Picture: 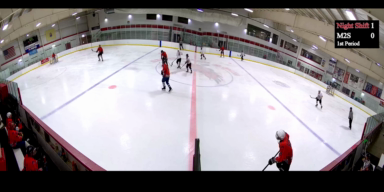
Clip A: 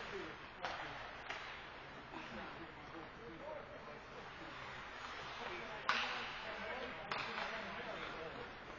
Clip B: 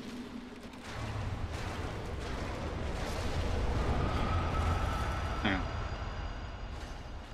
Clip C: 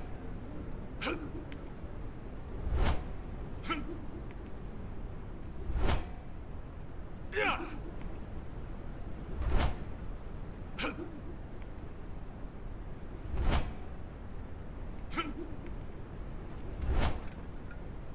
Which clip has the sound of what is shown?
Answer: A